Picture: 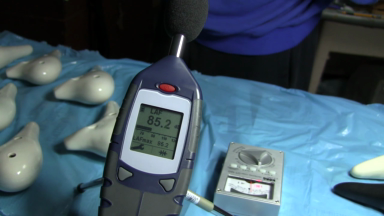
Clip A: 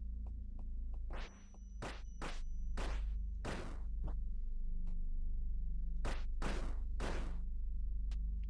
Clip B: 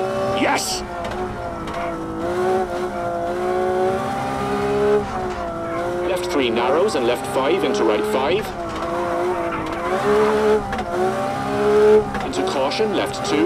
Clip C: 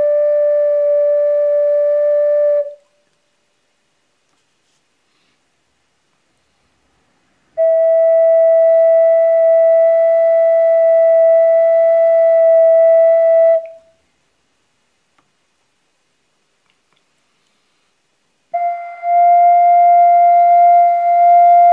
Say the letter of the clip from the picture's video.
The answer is C